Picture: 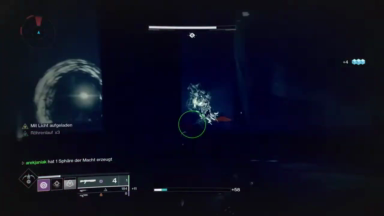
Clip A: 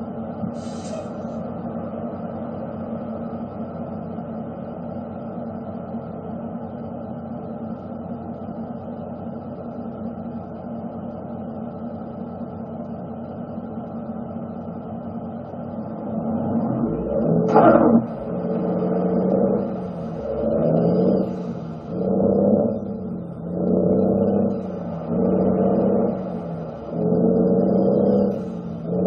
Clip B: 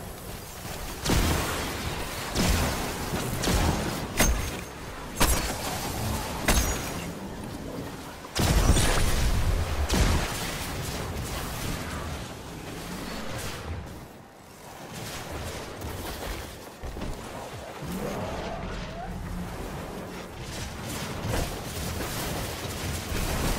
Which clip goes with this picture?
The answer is B